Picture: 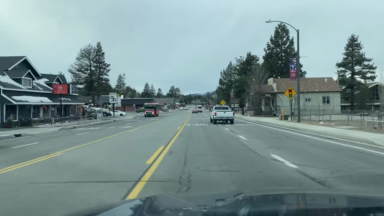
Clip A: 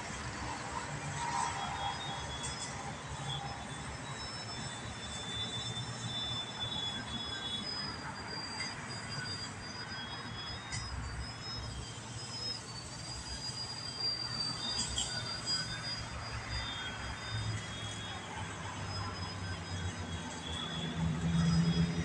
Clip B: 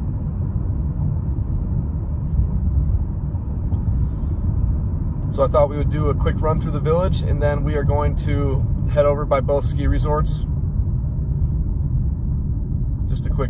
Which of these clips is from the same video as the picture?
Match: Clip B